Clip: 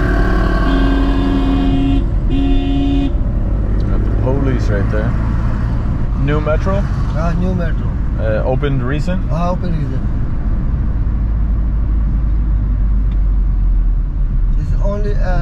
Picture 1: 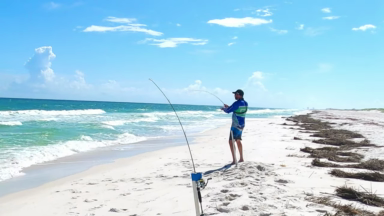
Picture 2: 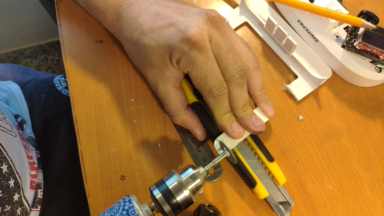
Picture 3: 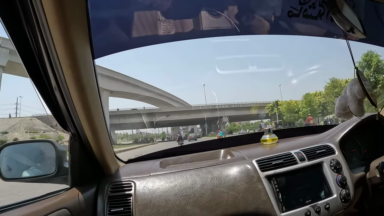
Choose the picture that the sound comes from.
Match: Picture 3